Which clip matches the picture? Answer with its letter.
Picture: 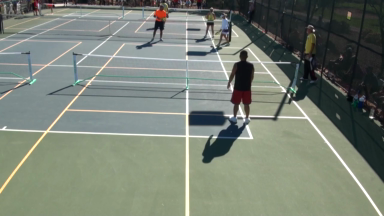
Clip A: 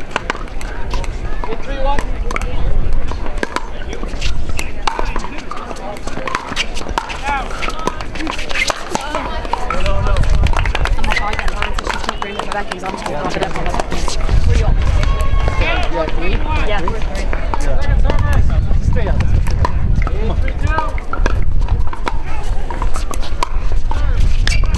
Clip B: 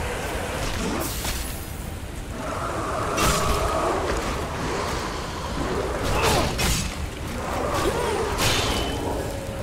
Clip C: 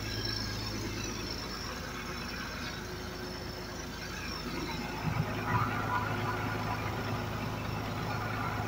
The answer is A